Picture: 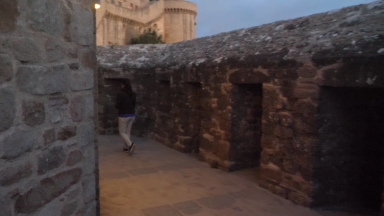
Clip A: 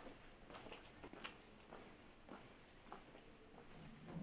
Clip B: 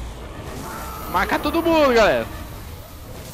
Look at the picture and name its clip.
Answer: A